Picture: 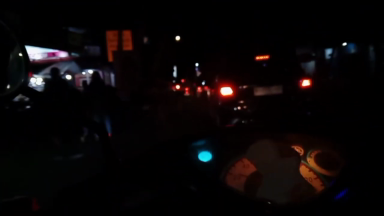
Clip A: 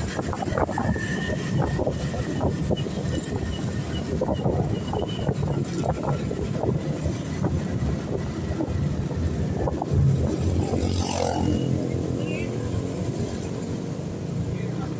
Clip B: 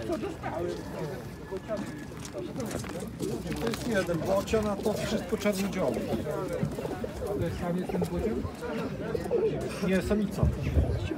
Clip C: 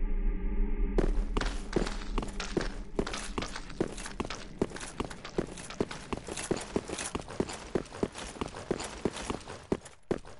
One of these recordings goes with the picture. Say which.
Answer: A